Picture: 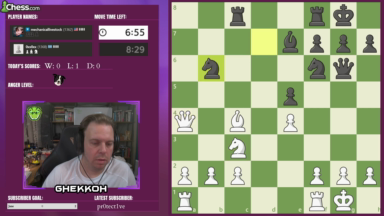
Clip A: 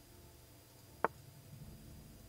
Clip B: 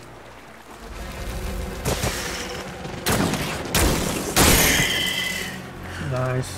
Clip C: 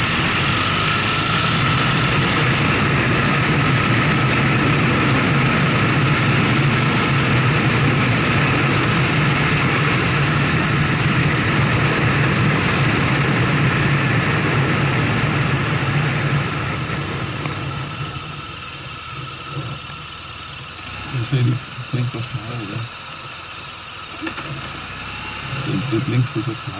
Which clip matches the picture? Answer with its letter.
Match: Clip A